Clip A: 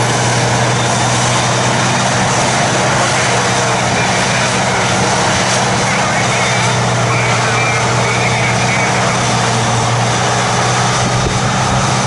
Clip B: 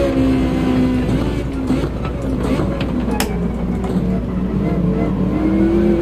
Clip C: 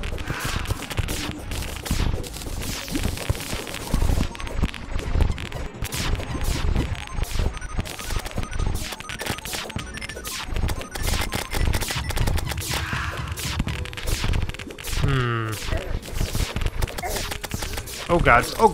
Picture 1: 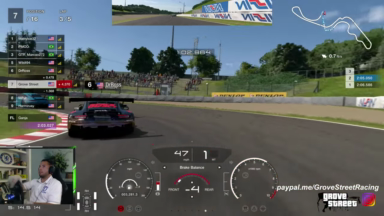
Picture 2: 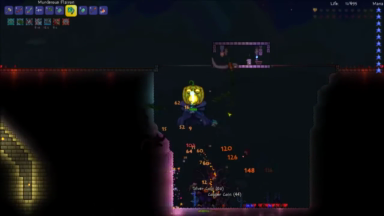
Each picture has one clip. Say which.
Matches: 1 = B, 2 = C